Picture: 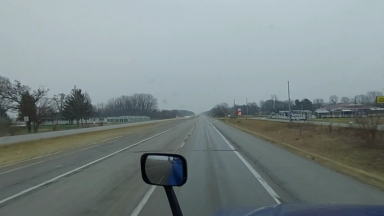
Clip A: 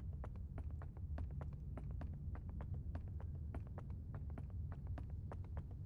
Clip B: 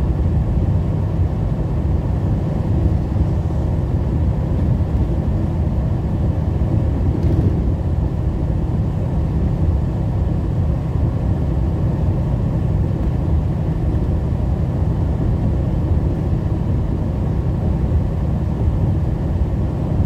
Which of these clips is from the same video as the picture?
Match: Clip B